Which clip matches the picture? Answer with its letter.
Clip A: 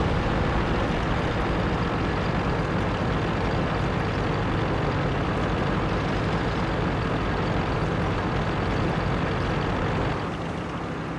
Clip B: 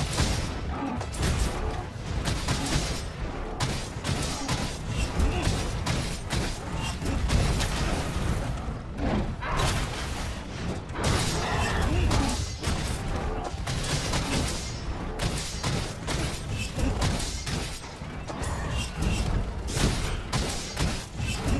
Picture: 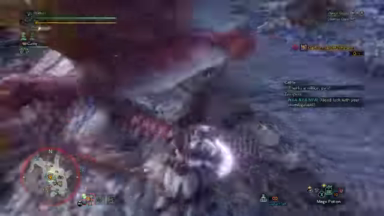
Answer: B